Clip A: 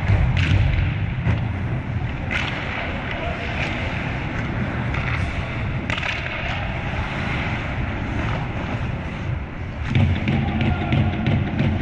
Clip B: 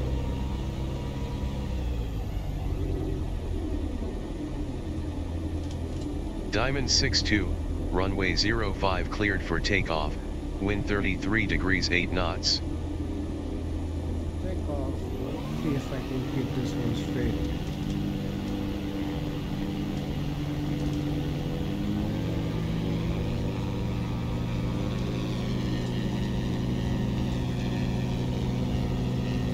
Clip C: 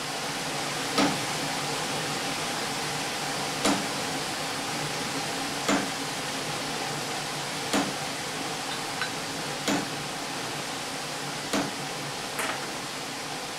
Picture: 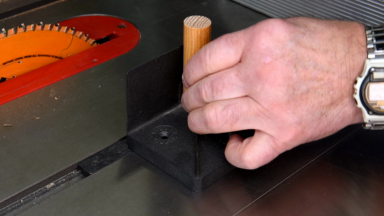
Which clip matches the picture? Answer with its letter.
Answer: C